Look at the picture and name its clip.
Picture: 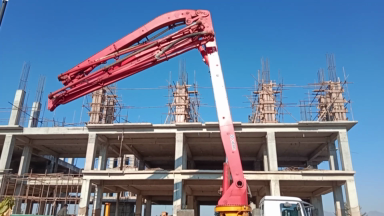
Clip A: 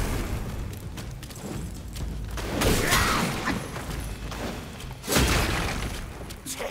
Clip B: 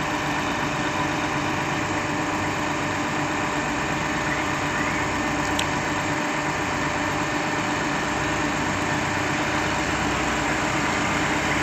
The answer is B